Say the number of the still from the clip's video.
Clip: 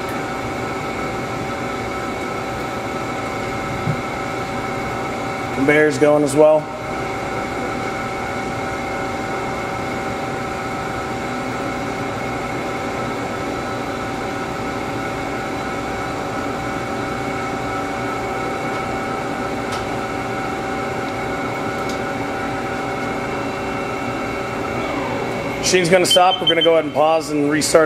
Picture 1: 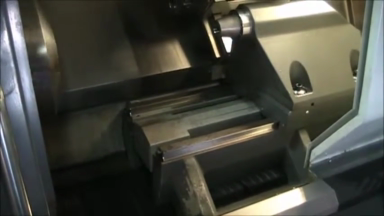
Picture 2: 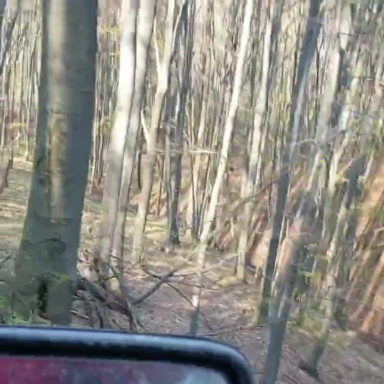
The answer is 1